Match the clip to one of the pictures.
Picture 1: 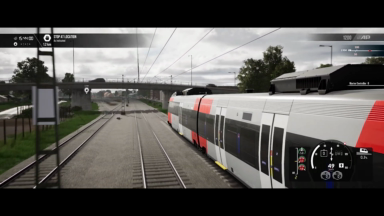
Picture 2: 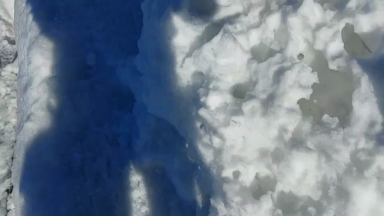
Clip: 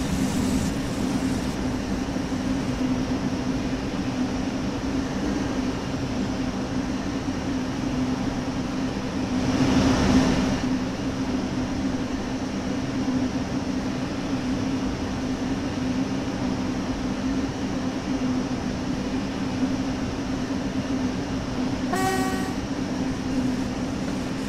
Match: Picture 1